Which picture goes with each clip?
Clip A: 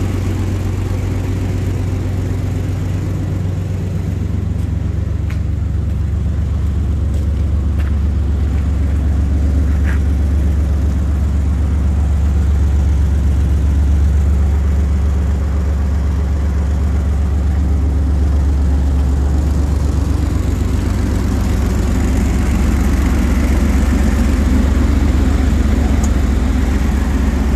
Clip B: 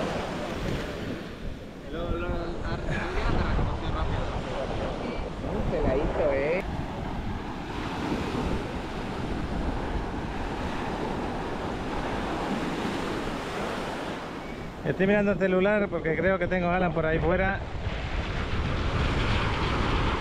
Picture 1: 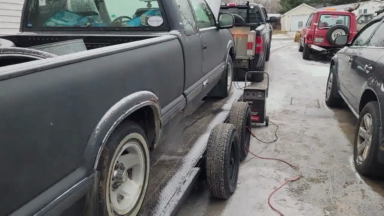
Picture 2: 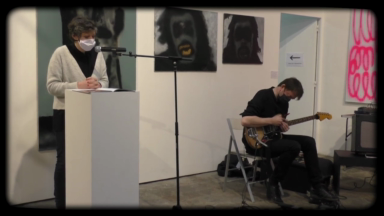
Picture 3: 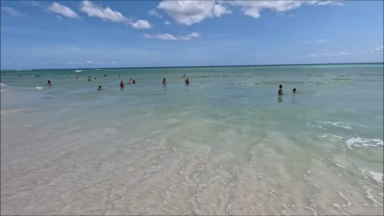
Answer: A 1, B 3